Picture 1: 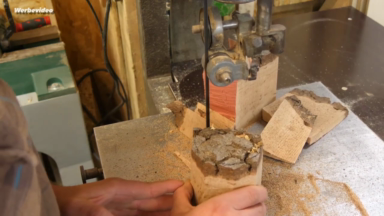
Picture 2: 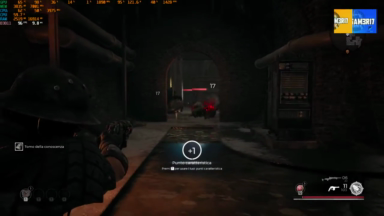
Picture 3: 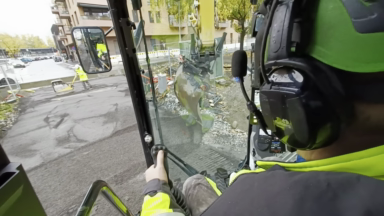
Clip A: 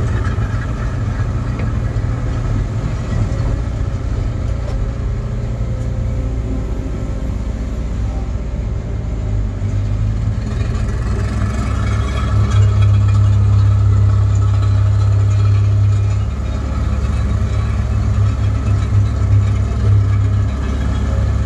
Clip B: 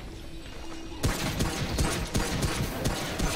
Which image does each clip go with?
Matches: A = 3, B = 2